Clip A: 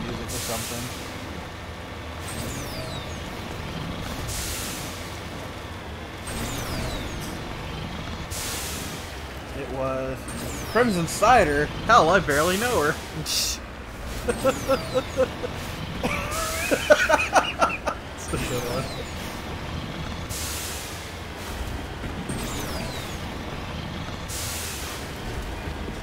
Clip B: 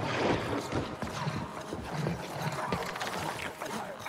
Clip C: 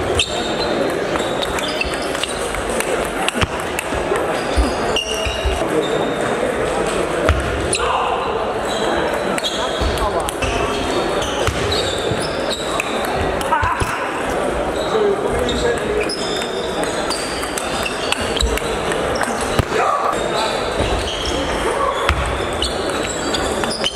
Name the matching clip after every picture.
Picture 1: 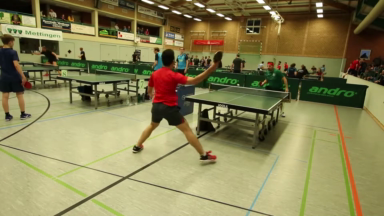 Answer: C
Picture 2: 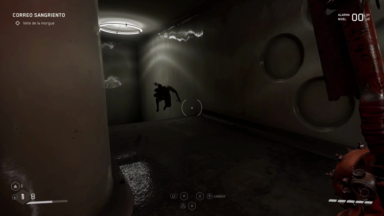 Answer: B